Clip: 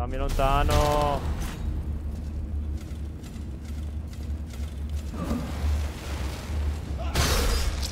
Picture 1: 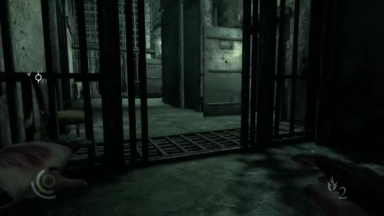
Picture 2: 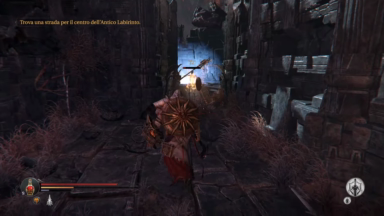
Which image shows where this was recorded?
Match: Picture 2